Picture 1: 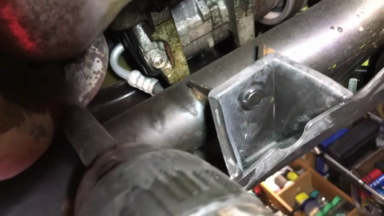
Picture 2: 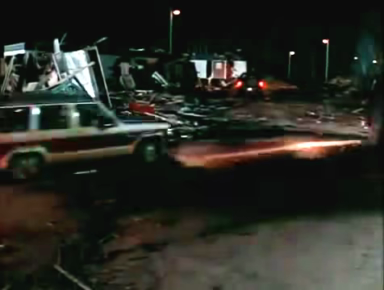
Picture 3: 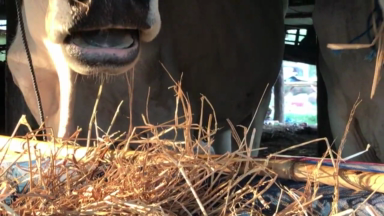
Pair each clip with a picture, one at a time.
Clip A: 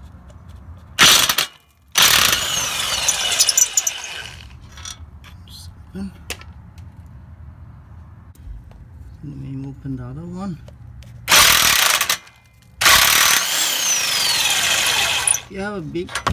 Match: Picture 1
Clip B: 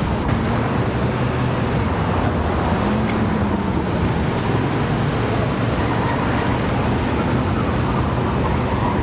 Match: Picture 2